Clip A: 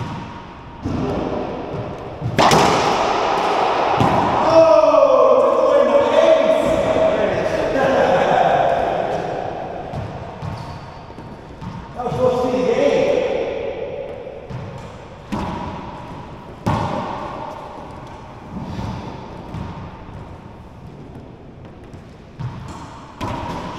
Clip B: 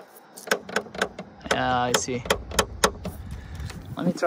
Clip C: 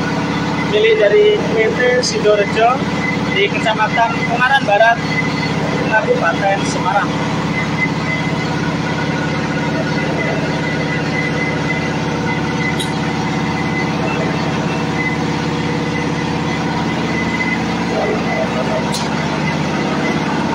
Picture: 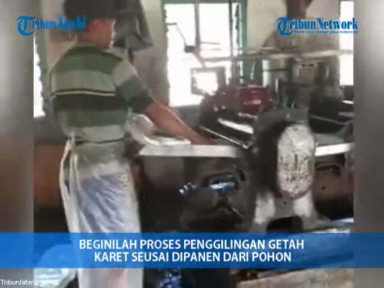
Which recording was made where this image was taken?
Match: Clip C